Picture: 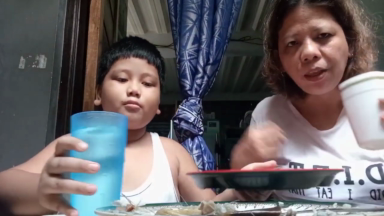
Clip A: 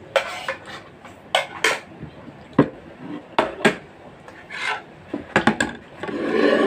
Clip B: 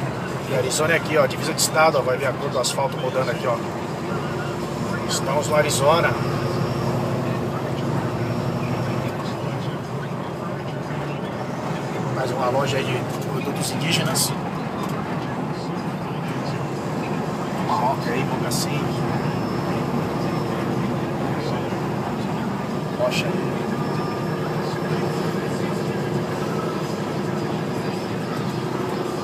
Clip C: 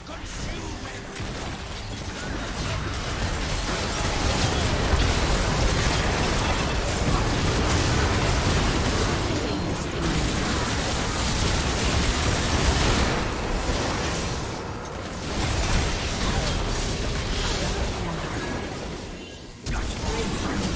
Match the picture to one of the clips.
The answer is A